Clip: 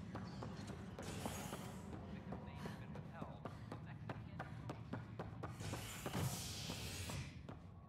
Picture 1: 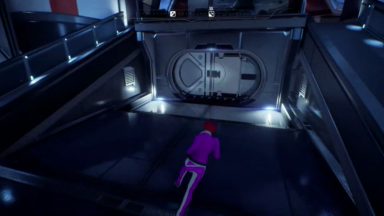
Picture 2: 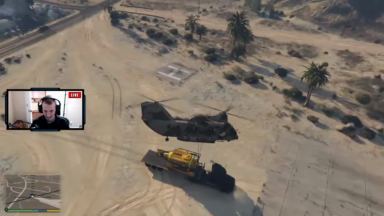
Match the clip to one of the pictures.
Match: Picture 1